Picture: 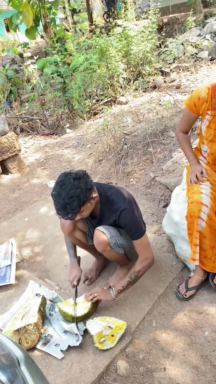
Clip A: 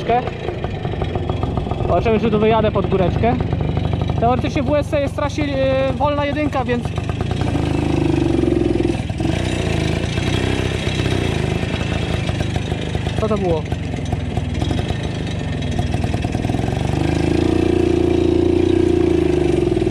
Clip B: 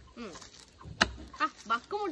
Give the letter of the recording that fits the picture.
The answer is B